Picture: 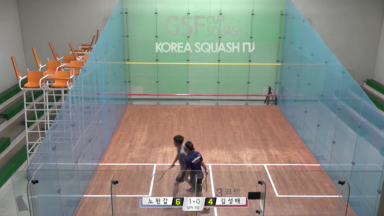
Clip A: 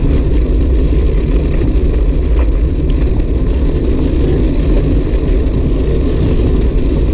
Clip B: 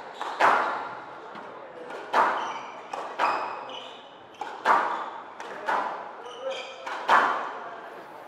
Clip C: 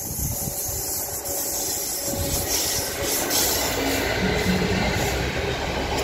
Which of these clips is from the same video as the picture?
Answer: B